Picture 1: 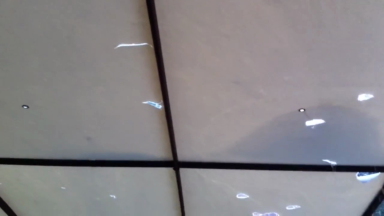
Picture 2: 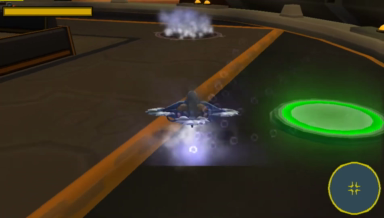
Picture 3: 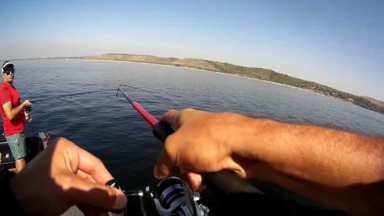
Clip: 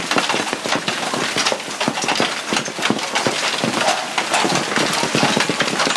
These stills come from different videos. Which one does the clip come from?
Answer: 1